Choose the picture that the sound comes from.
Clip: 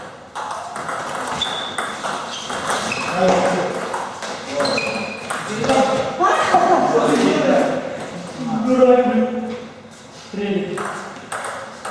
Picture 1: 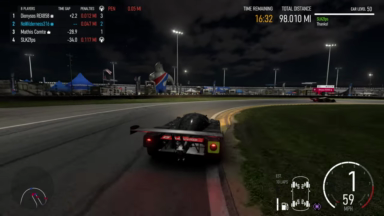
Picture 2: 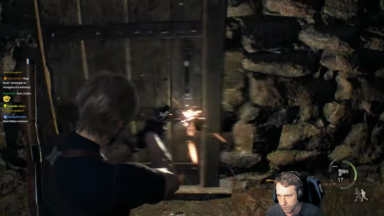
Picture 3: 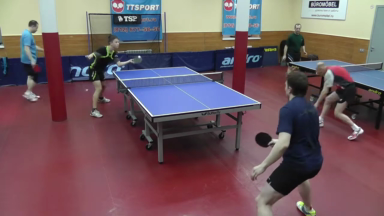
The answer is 3